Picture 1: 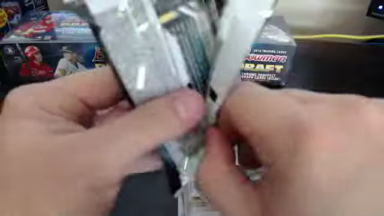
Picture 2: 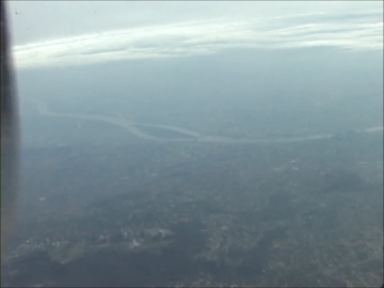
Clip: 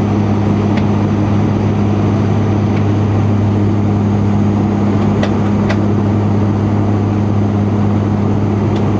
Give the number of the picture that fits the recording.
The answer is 2